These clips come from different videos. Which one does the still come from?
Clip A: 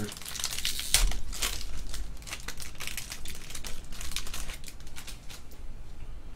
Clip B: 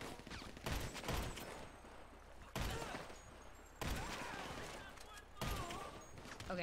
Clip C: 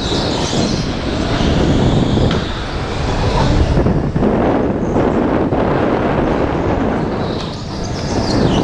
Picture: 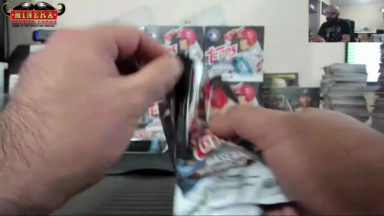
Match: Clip A